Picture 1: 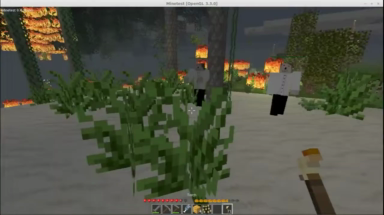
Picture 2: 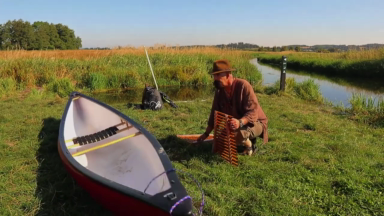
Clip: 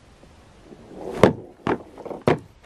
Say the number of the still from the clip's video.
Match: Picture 2